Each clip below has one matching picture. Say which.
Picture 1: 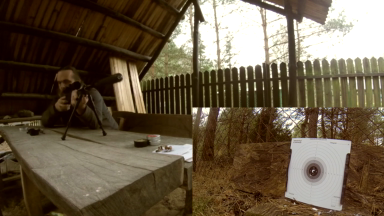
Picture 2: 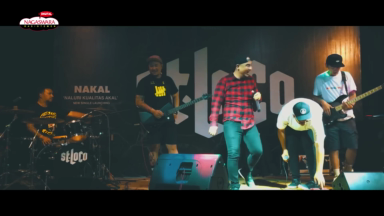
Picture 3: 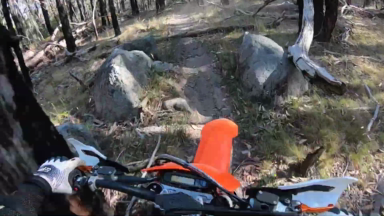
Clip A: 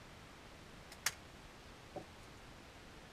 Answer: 1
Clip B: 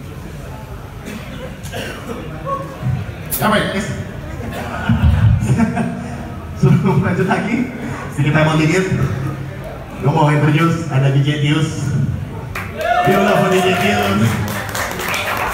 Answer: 2